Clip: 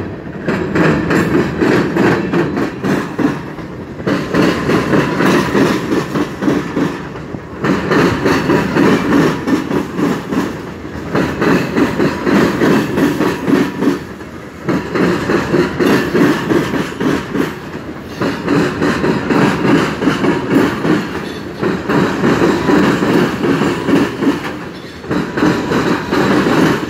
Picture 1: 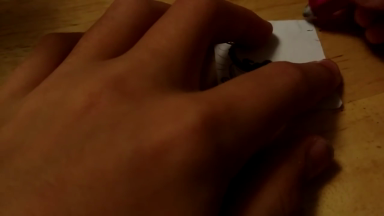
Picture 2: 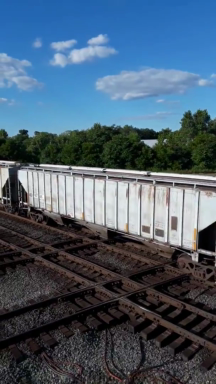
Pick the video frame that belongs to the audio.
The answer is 2